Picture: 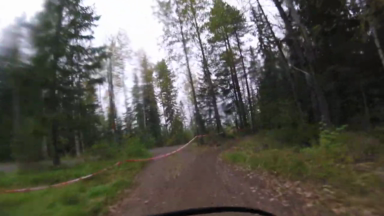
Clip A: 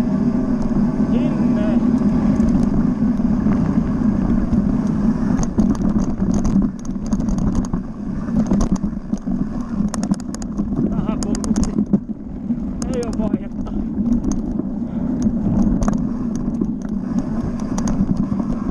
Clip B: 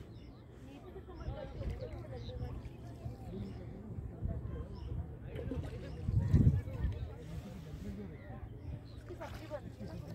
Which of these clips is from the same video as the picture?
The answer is A